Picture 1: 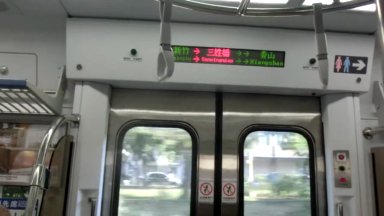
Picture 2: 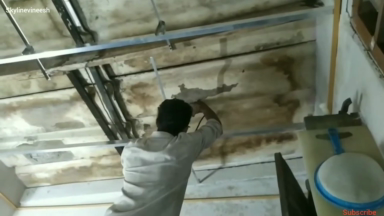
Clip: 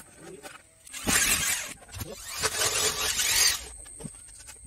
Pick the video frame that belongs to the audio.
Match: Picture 2